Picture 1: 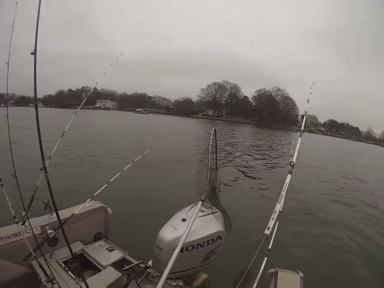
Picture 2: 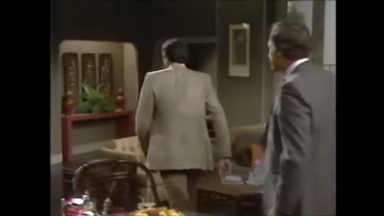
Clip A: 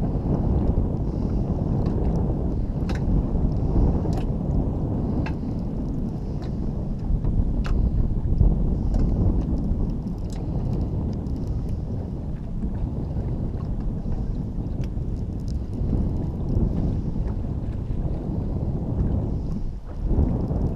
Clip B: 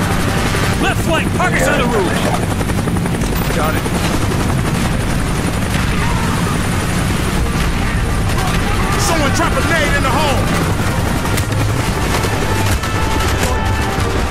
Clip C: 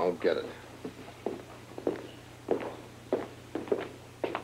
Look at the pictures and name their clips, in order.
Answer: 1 A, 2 C